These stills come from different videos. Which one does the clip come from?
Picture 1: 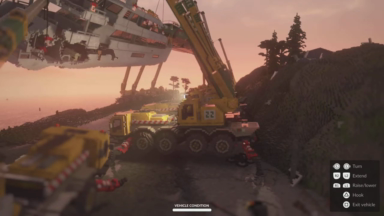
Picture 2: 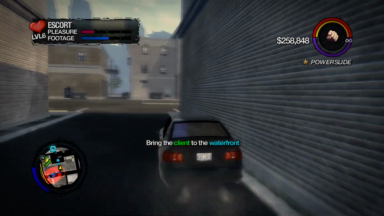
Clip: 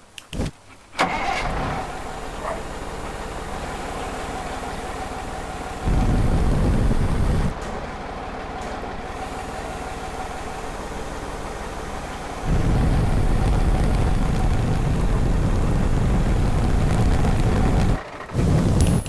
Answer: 1